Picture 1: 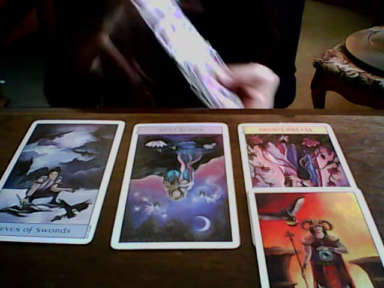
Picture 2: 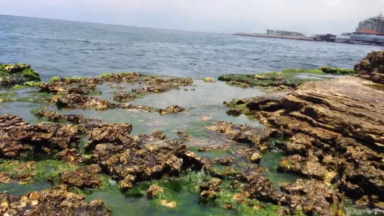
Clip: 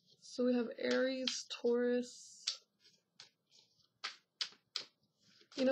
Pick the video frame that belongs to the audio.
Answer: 1